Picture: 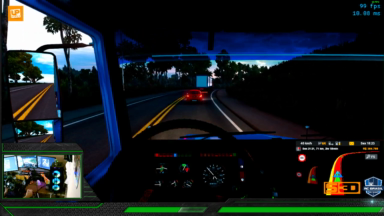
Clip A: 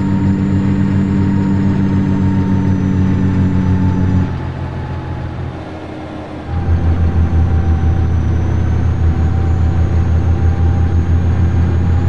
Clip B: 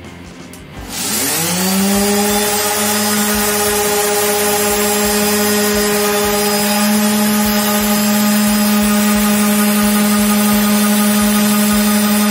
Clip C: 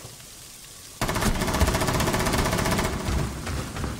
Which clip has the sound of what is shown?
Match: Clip A